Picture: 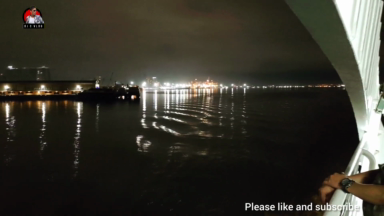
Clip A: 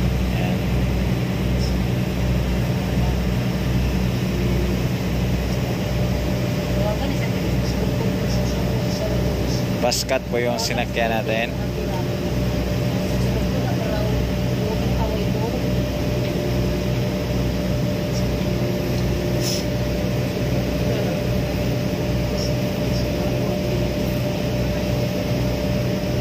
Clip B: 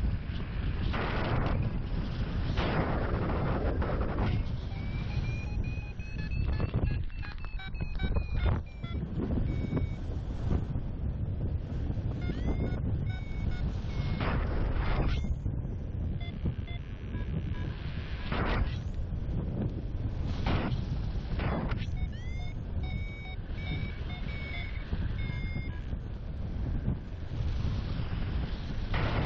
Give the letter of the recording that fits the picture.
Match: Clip A